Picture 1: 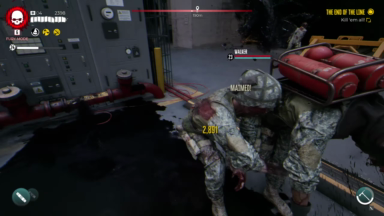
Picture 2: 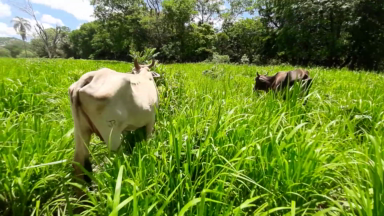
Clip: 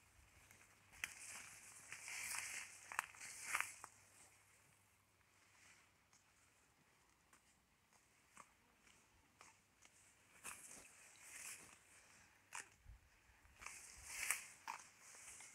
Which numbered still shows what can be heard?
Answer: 2